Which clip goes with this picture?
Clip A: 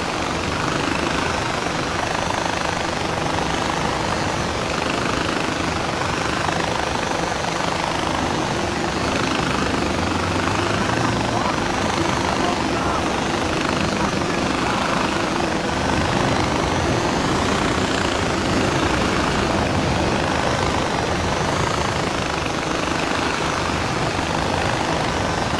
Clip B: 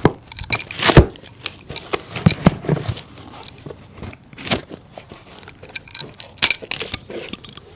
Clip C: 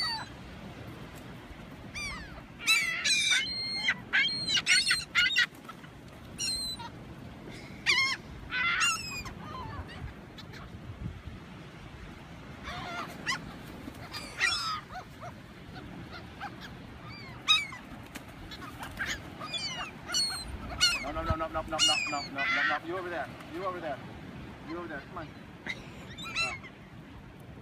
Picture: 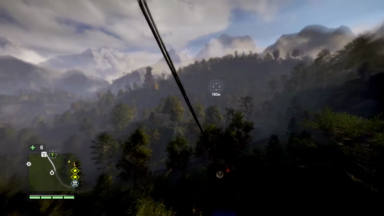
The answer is A